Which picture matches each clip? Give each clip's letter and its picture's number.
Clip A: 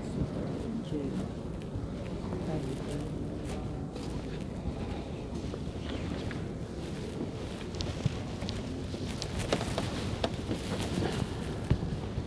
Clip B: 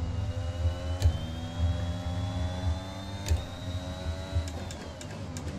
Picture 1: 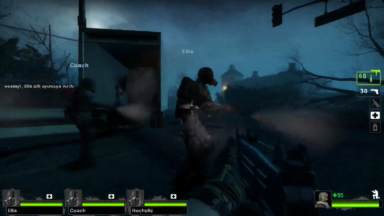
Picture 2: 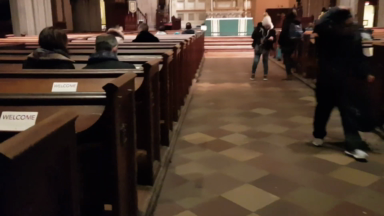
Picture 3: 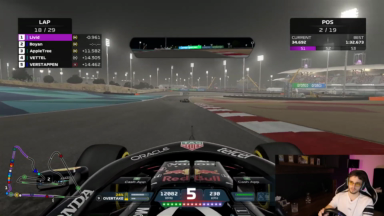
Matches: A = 2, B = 3